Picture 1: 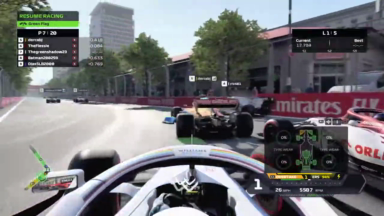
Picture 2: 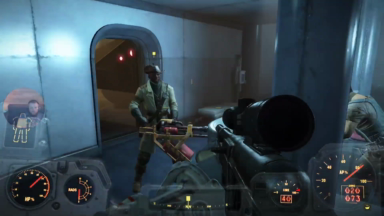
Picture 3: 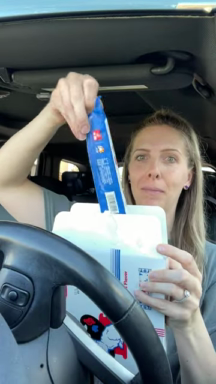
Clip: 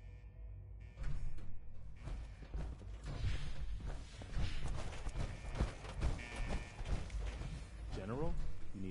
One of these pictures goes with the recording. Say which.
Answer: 2